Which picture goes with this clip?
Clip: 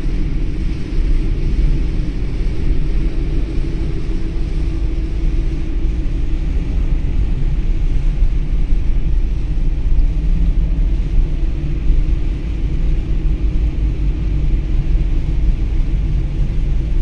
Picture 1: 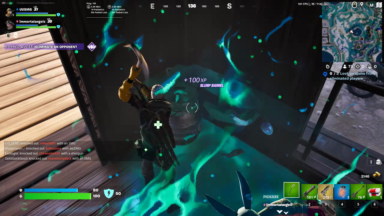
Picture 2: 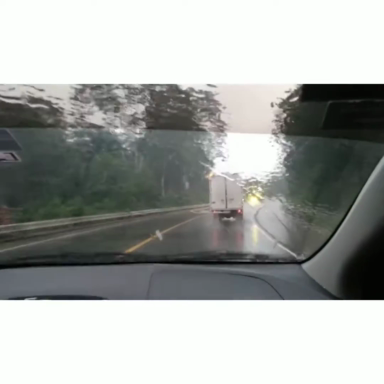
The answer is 2